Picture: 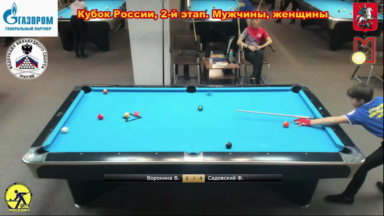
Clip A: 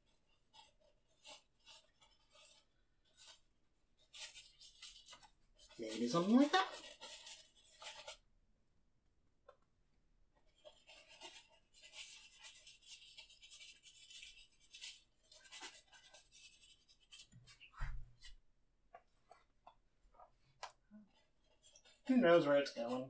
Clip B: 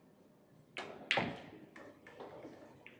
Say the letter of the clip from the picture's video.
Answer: B